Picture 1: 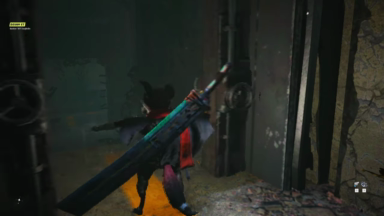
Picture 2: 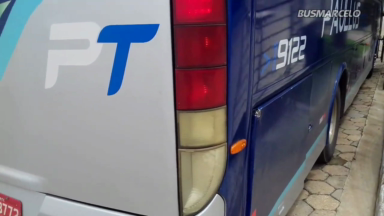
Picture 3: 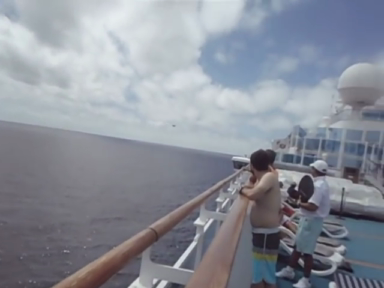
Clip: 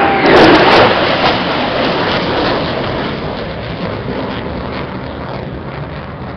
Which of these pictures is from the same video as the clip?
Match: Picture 3